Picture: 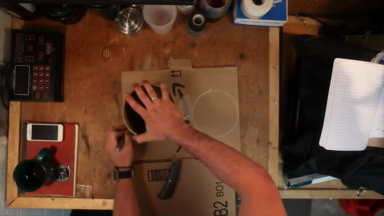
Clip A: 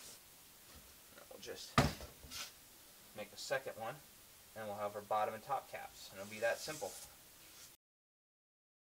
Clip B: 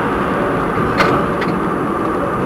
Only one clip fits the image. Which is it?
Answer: A